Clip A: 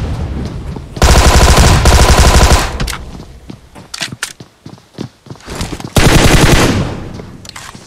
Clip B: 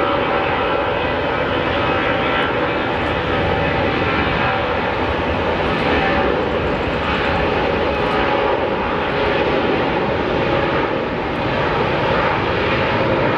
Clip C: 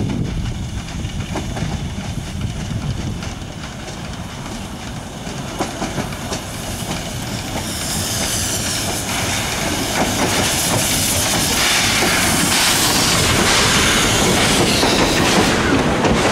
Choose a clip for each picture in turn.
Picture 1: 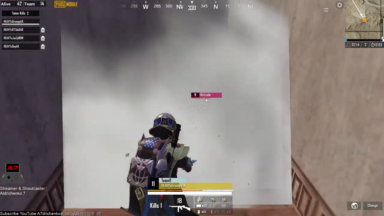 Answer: A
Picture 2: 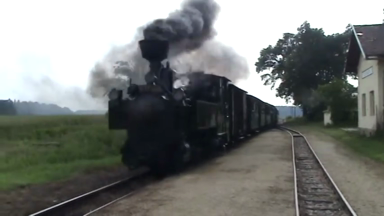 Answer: C